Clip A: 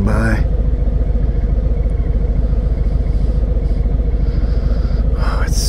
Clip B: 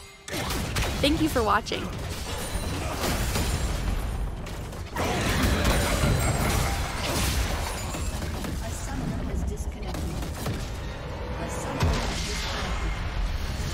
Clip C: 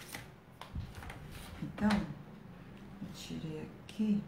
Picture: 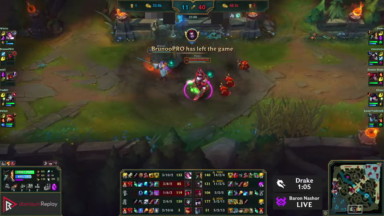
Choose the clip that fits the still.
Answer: B